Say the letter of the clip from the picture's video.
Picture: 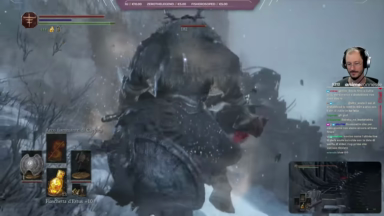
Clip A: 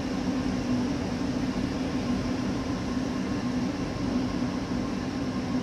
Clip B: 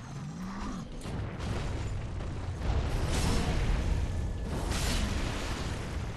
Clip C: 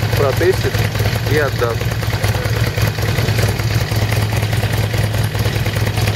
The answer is B